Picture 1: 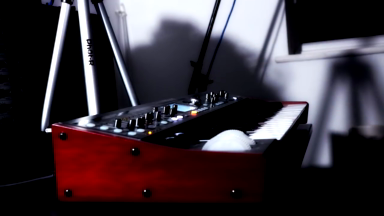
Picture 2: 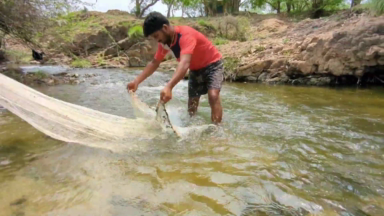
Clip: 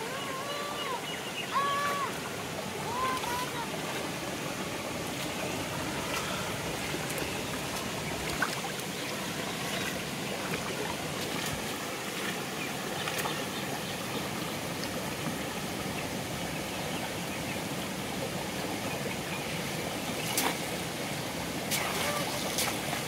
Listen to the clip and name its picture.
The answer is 2